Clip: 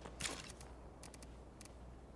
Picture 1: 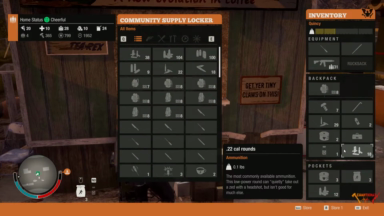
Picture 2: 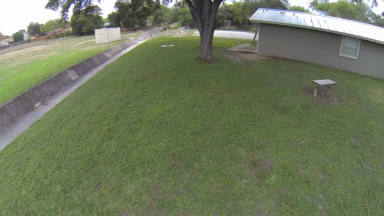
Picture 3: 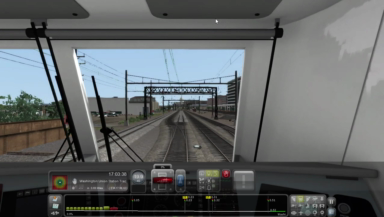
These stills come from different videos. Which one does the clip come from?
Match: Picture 1